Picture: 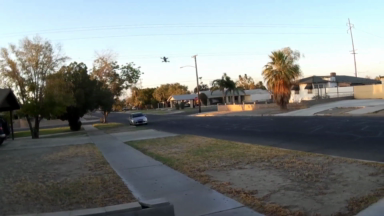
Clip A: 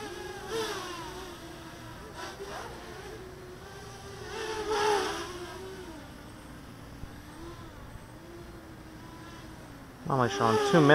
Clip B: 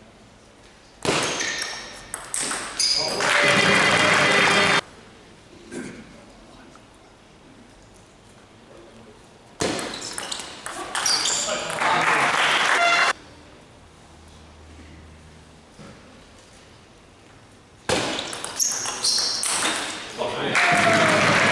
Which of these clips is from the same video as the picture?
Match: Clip A